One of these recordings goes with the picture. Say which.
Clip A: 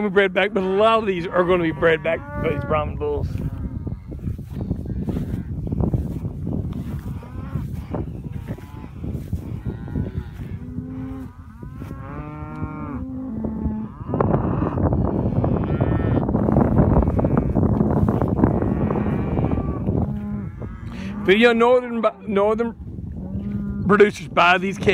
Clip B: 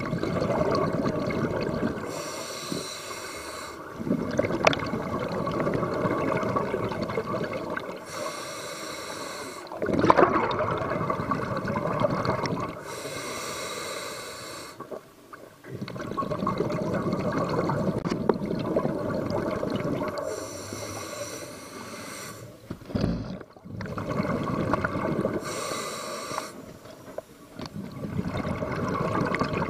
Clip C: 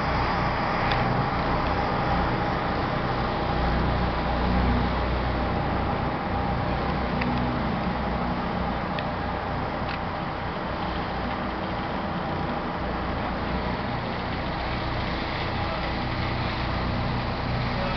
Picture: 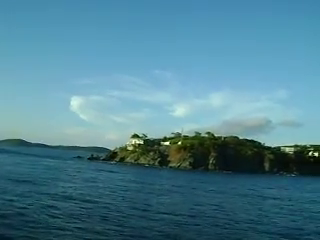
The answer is C